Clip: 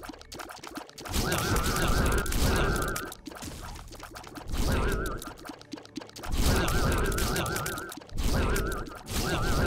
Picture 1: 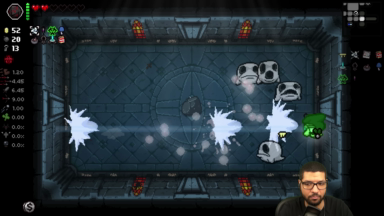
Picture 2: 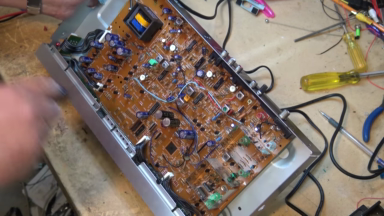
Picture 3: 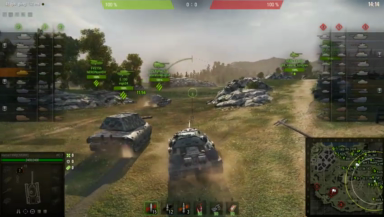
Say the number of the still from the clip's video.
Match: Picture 1